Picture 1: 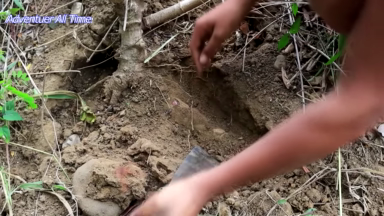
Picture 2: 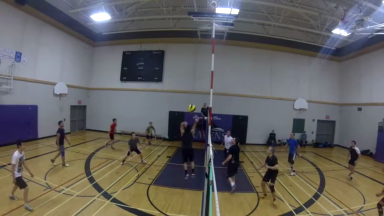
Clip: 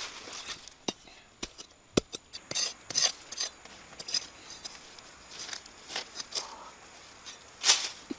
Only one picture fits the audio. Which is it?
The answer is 1